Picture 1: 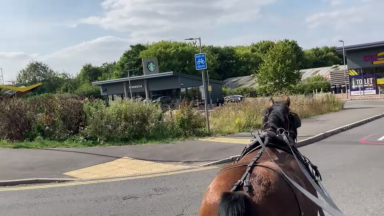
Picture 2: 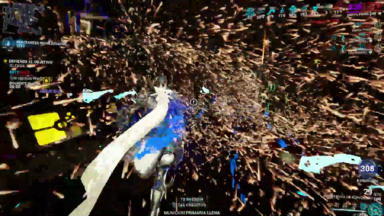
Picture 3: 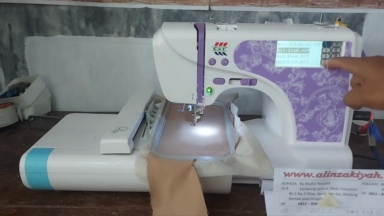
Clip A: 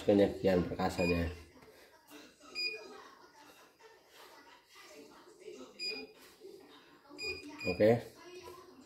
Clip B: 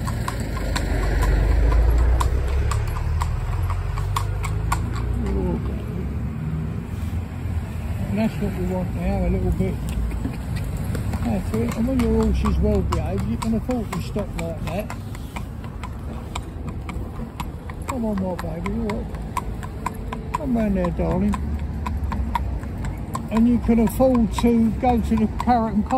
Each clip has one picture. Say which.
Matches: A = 3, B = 1